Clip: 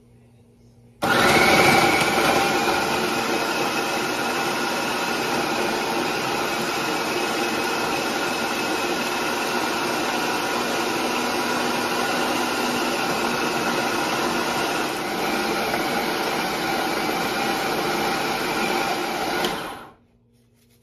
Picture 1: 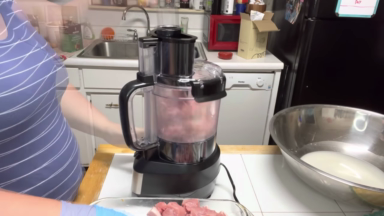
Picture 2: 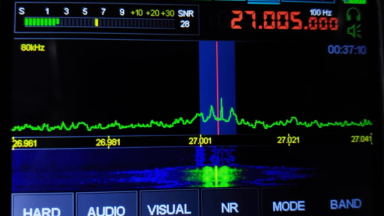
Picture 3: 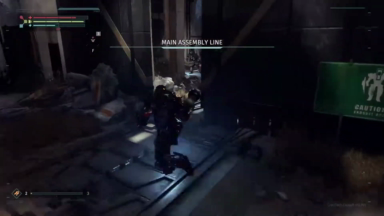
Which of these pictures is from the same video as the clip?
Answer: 1